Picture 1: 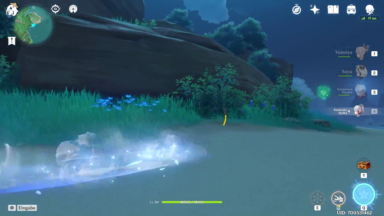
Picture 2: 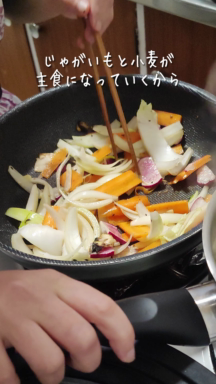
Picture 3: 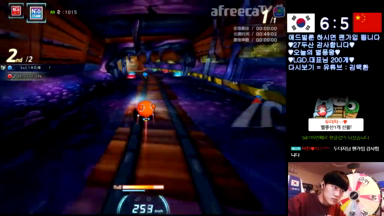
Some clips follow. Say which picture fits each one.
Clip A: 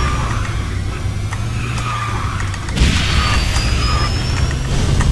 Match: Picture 3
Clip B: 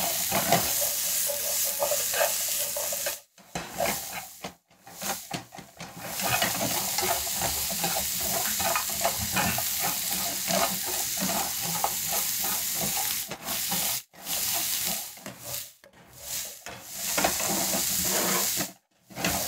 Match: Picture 2